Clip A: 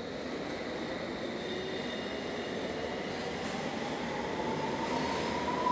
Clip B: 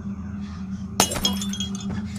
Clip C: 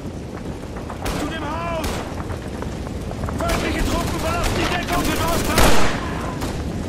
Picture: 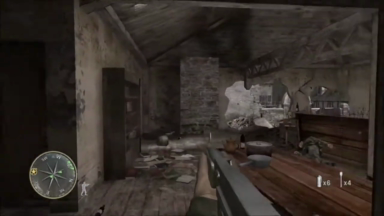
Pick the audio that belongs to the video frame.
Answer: C